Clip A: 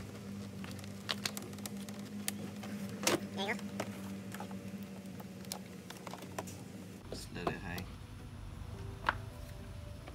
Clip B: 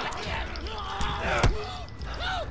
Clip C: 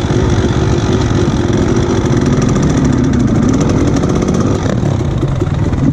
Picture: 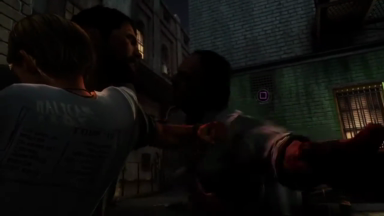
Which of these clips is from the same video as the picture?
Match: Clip B